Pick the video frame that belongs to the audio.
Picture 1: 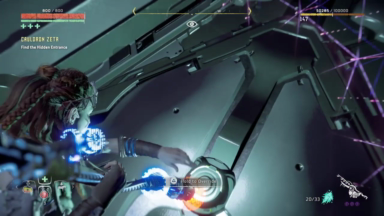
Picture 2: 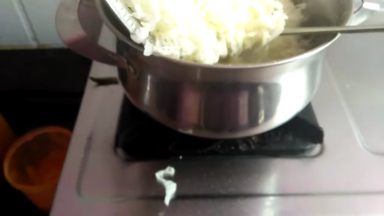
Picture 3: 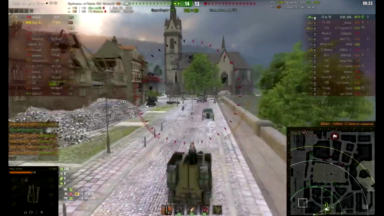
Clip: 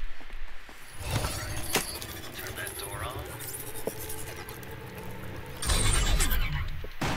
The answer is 1